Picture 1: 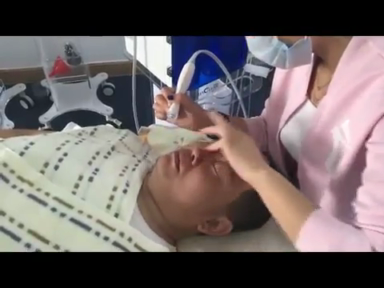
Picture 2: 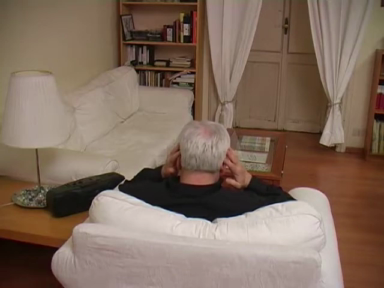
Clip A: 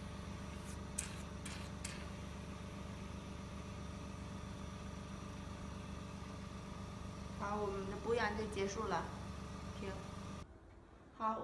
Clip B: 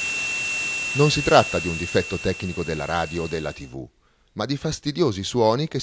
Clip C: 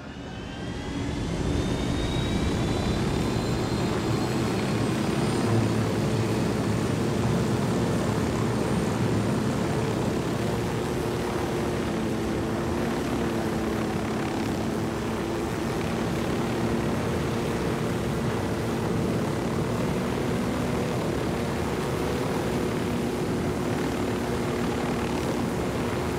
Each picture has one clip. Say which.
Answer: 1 A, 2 B